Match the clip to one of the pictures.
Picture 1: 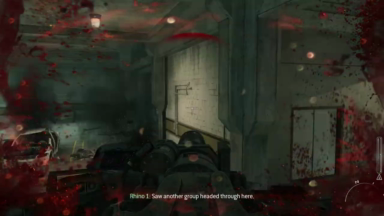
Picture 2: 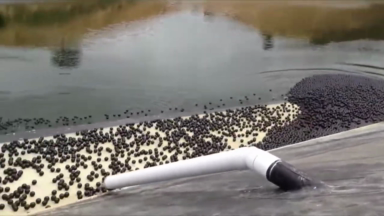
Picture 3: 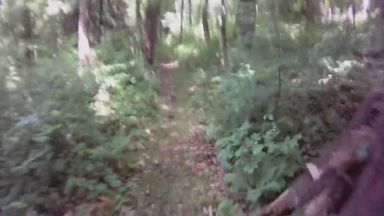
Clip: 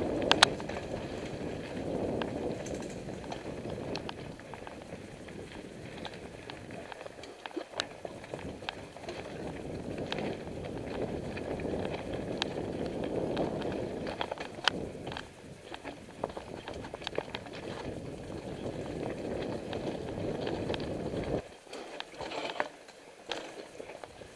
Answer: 3